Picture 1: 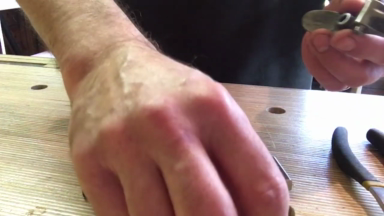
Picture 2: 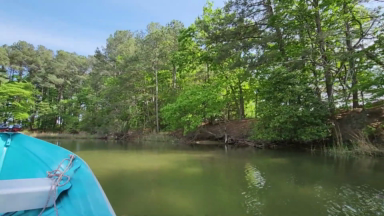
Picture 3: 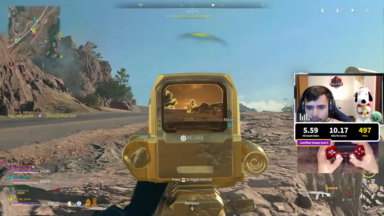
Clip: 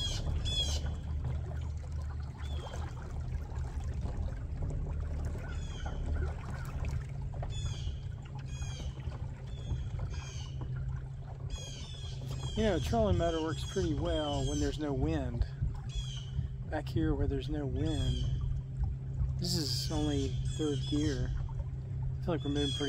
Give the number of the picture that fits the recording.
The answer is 2